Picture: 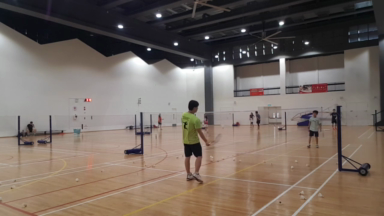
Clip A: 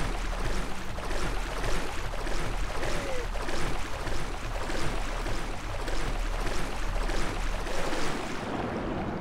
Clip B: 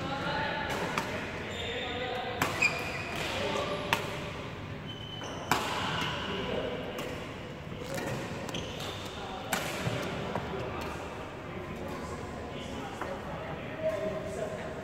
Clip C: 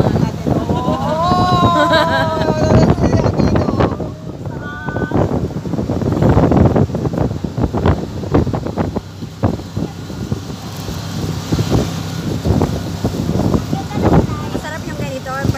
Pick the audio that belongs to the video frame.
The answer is B